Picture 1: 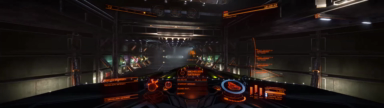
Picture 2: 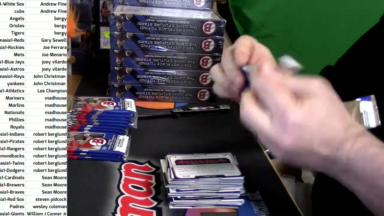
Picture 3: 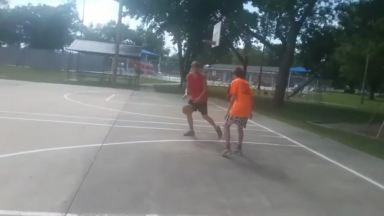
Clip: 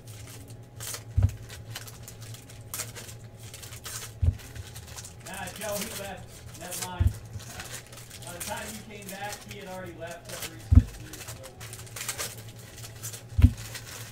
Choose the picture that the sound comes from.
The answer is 2